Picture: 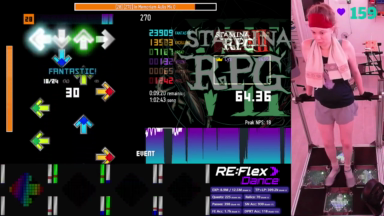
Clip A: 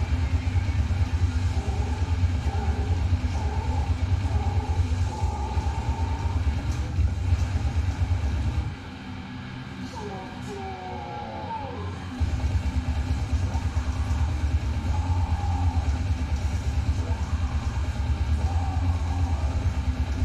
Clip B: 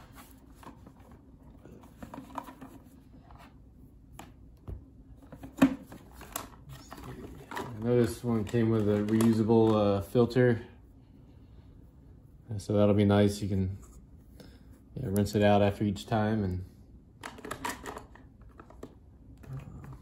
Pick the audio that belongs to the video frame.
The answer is A